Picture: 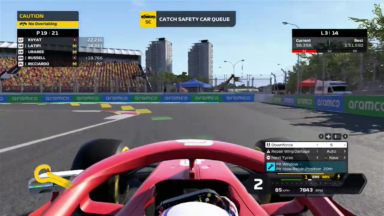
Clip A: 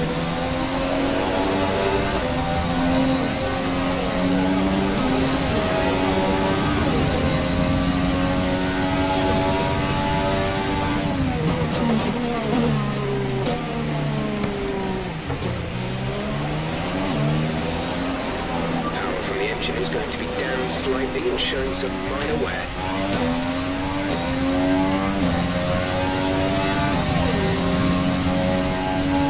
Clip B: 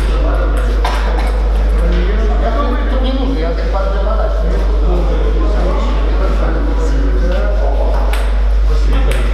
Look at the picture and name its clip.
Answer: A